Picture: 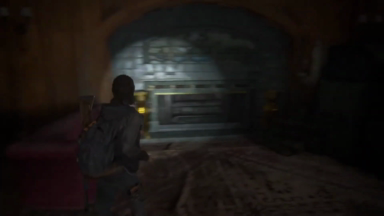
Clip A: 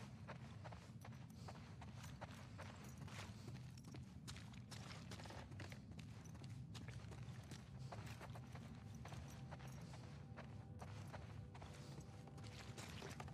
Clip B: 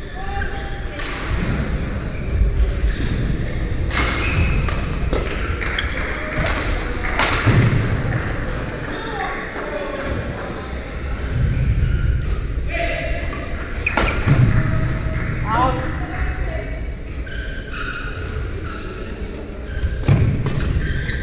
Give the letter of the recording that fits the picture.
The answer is A